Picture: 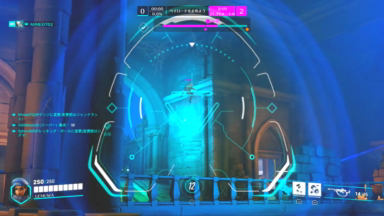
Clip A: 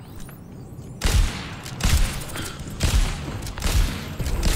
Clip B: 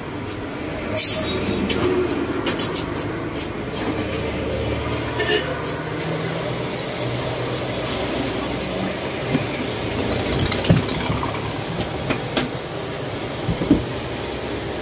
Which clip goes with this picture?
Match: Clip A